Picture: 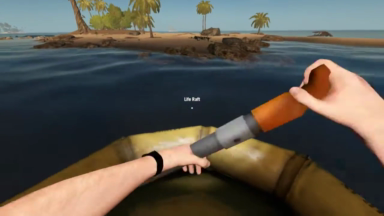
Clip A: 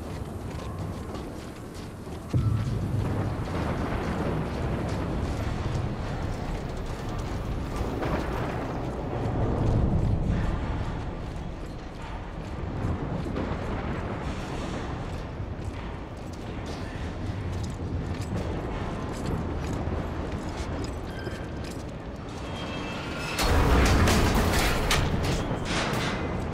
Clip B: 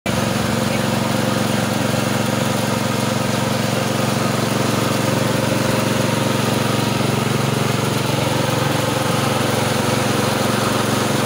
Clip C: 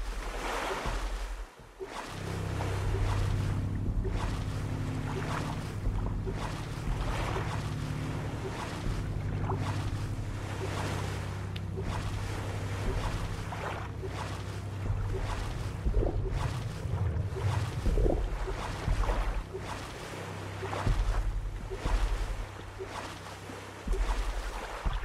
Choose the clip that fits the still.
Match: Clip C